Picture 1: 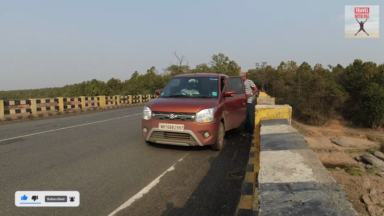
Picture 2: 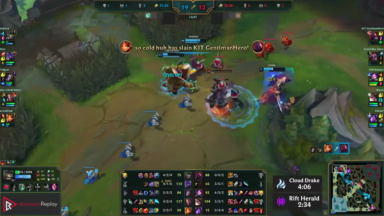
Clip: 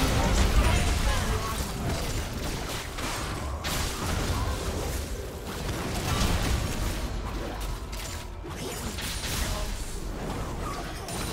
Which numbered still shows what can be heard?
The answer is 2